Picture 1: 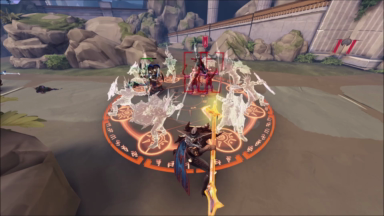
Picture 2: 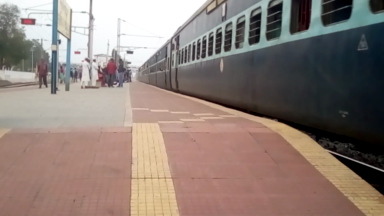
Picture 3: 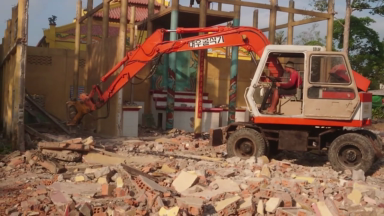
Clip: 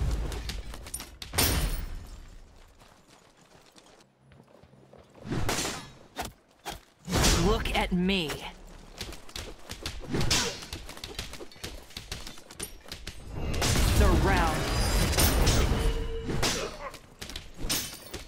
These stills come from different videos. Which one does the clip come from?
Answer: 1